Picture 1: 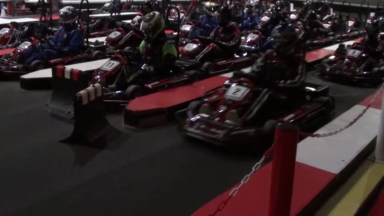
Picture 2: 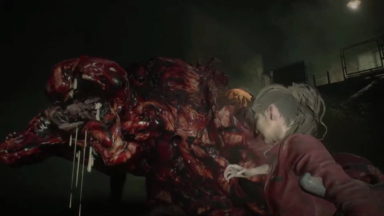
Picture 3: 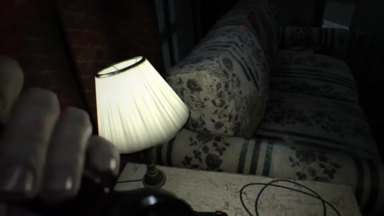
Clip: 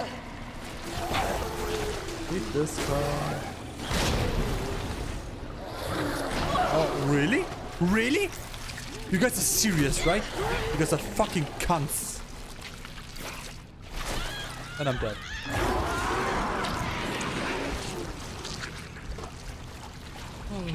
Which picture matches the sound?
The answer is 2